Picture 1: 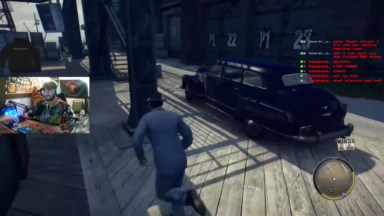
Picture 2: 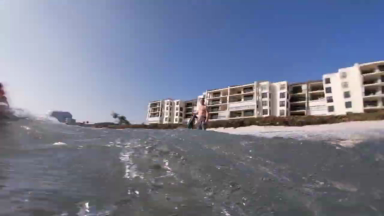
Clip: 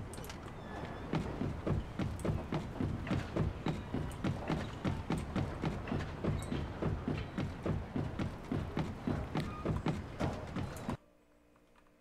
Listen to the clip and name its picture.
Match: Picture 1